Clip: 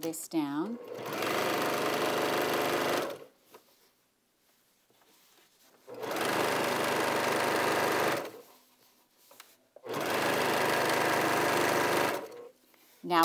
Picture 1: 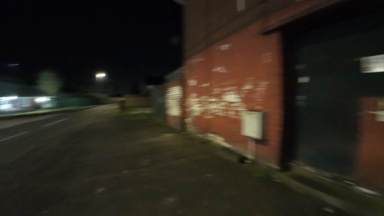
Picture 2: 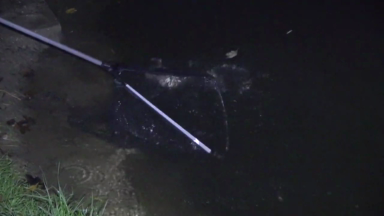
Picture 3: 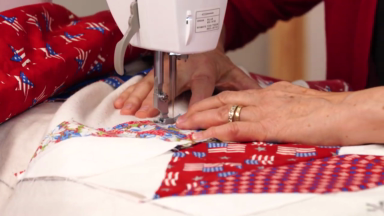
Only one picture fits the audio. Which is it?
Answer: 3